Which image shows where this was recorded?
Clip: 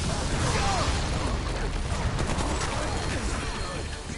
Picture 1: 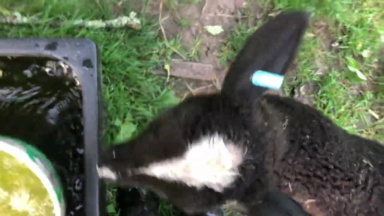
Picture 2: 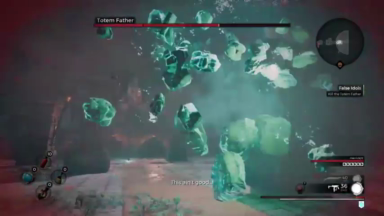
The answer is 2